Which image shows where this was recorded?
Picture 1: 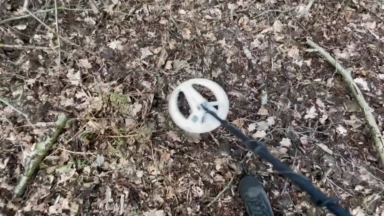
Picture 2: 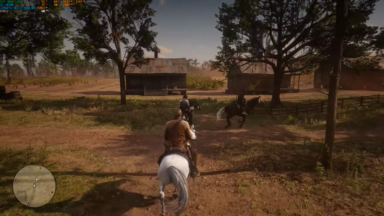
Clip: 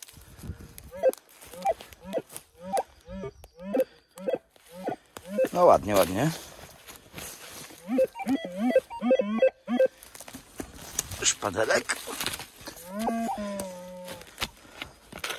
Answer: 1